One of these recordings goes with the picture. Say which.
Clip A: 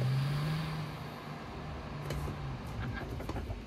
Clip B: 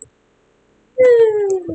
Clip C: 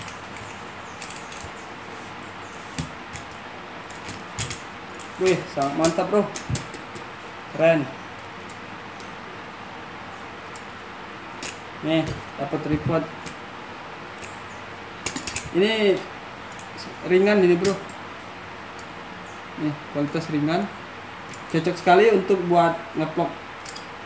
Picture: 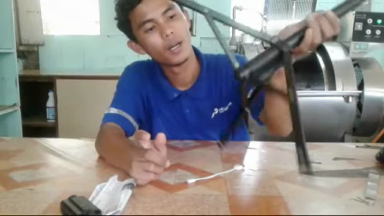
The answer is C